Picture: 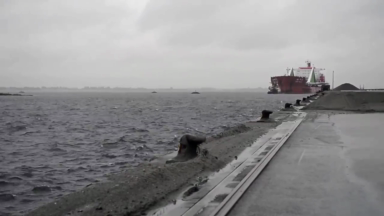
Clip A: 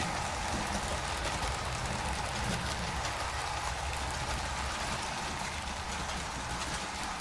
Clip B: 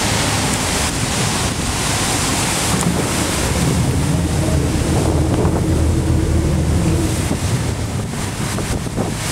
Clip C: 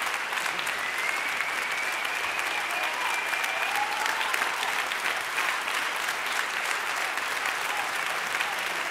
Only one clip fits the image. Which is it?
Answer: B